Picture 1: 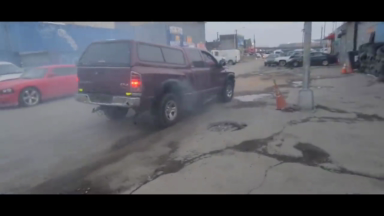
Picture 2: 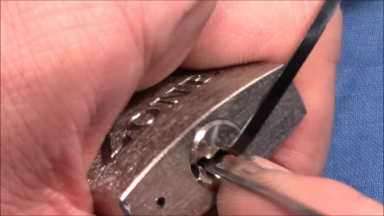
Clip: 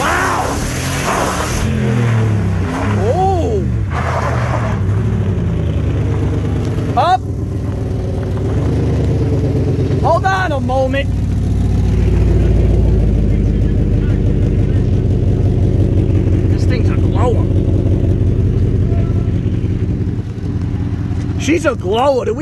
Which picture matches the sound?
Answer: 1